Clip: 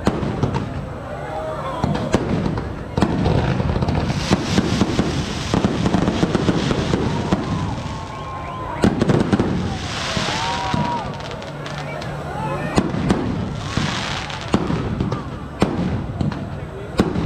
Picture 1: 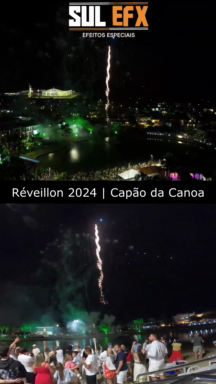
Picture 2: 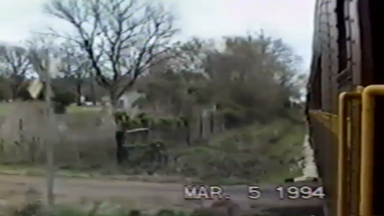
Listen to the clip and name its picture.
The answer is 1